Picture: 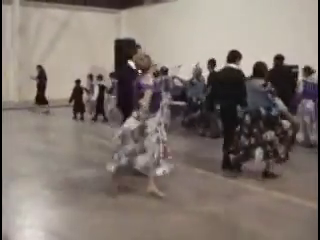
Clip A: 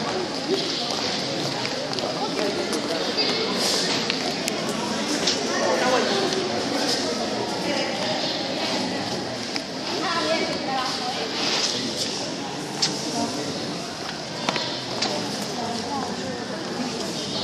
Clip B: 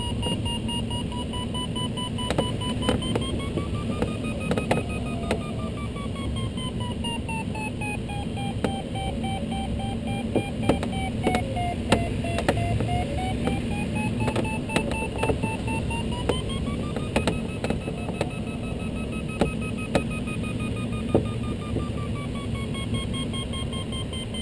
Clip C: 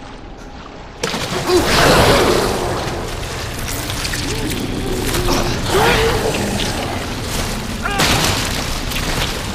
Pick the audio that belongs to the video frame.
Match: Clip A